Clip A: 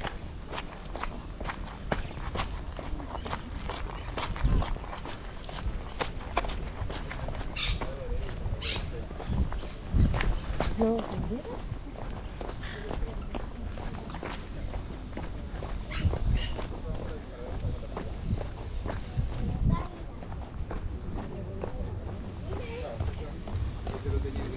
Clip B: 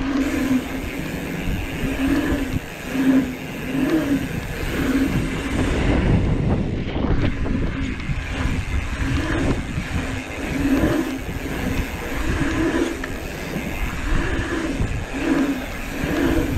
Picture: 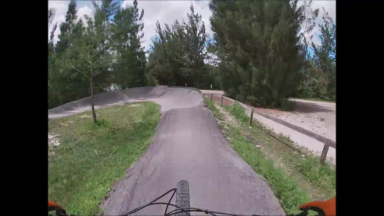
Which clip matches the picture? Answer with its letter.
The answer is B